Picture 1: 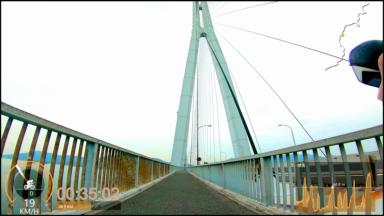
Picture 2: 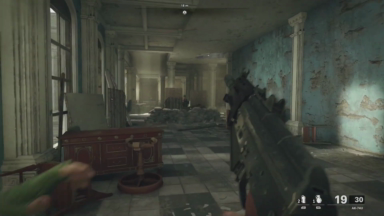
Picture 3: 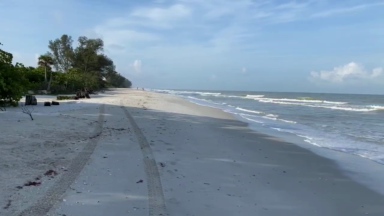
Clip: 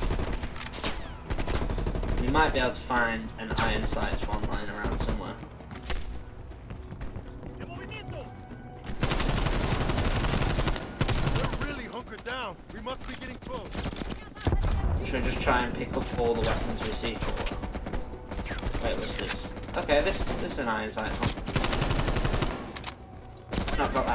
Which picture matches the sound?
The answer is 2